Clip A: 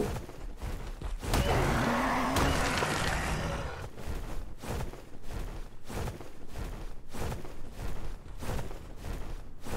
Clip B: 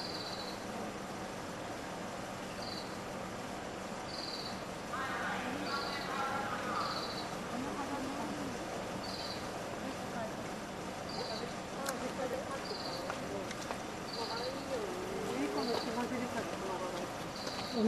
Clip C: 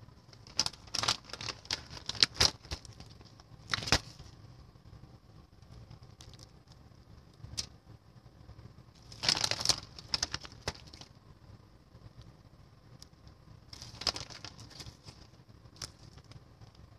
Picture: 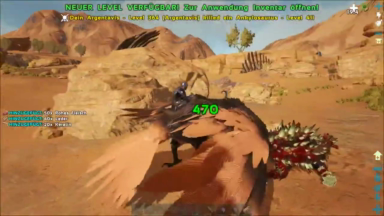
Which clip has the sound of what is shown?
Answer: A